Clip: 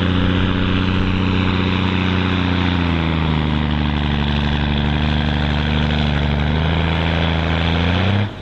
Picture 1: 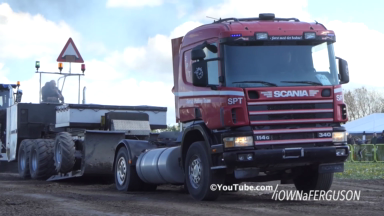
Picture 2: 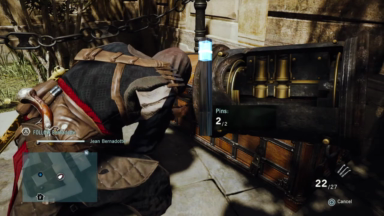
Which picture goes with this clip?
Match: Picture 1